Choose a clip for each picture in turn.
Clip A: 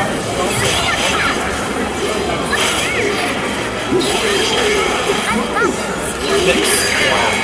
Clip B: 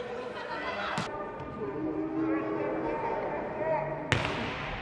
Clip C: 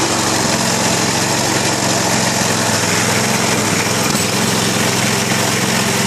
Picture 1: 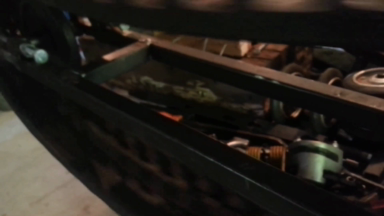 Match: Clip C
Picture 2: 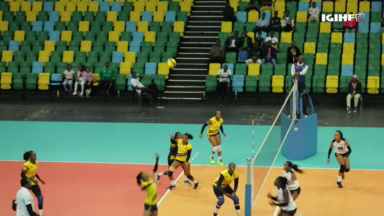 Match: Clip B